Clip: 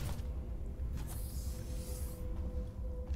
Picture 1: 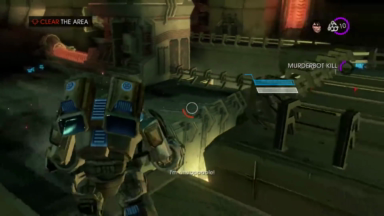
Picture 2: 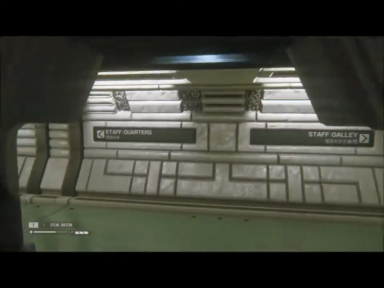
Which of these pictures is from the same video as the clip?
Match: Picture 2